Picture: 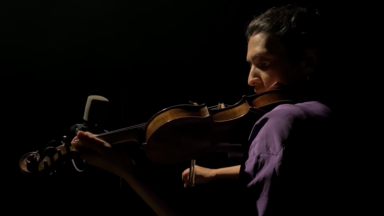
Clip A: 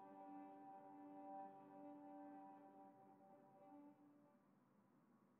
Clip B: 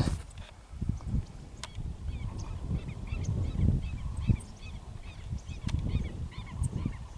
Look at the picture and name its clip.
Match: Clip A